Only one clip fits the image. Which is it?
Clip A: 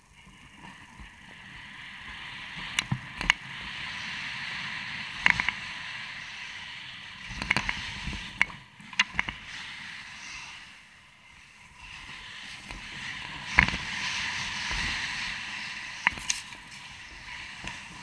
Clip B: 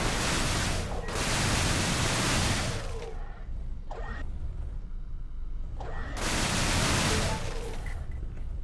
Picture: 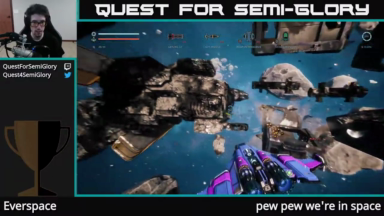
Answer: B